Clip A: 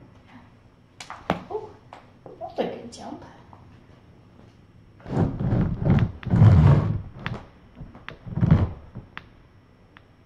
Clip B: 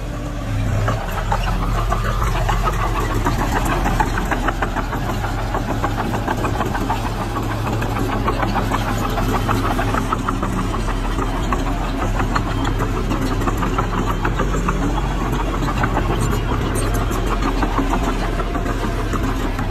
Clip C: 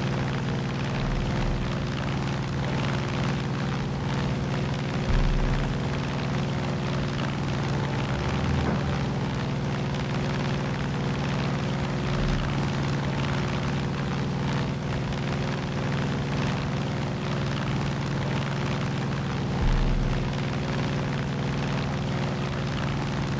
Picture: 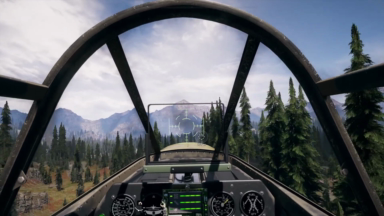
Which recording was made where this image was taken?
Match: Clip C